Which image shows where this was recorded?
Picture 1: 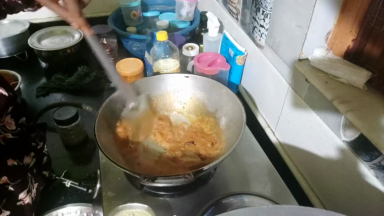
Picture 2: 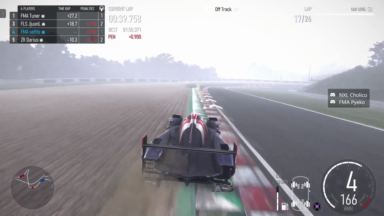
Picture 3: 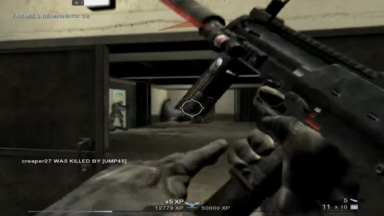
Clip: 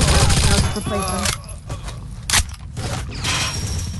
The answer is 3